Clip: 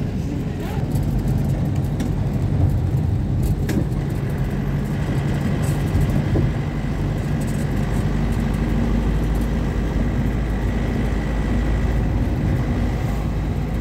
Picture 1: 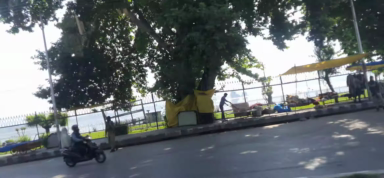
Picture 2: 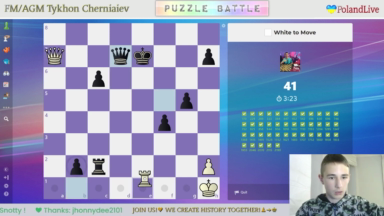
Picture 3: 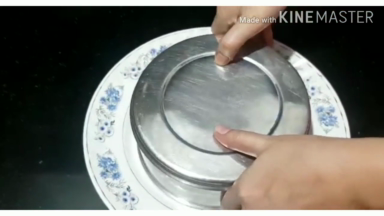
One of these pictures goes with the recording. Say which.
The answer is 1